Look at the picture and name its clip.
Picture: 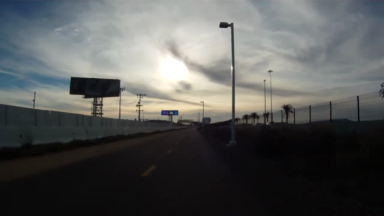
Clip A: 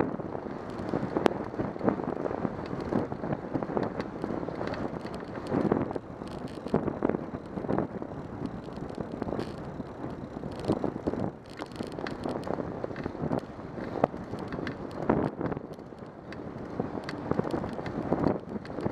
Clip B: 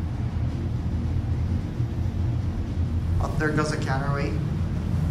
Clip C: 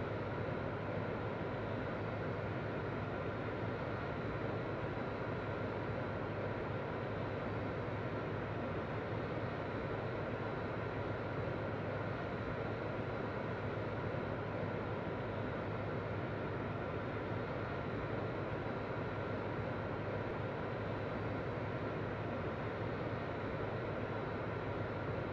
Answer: A